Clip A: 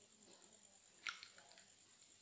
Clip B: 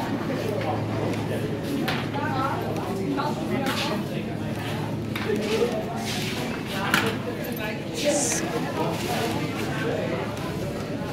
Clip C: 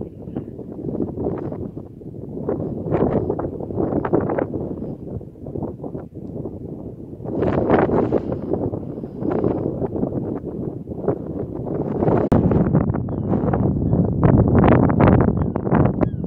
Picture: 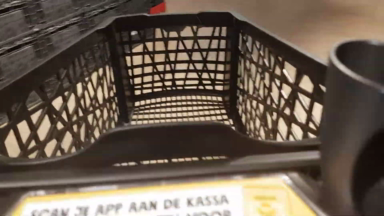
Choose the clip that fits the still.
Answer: B